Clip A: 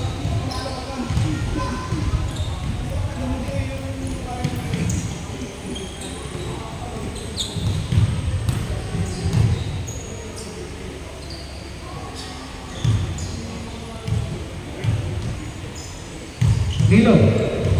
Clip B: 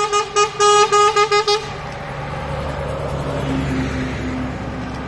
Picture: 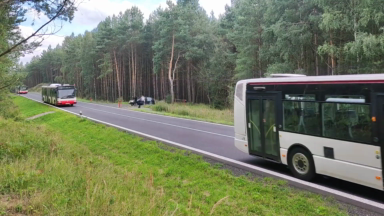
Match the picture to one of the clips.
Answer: B